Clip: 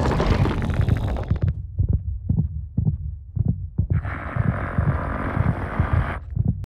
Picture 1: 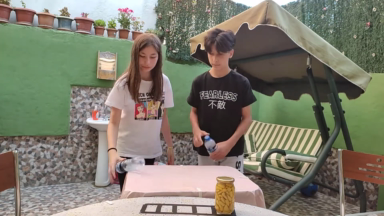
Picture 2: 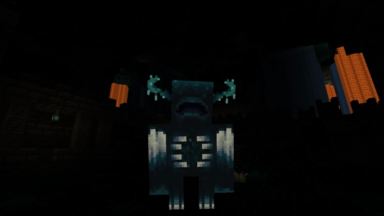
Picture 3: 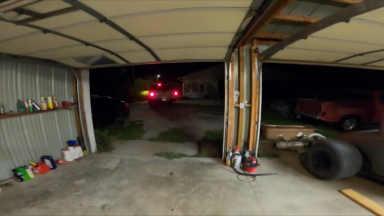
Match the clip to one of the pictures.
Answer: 2